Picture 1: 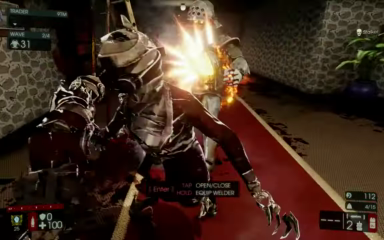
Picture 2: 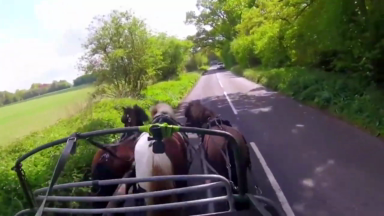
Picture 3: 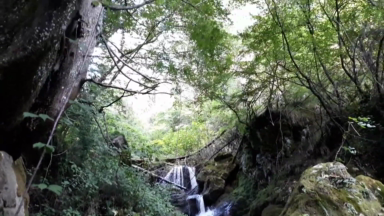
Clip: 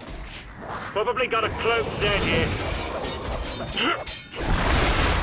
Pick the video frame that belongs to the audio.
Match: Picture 1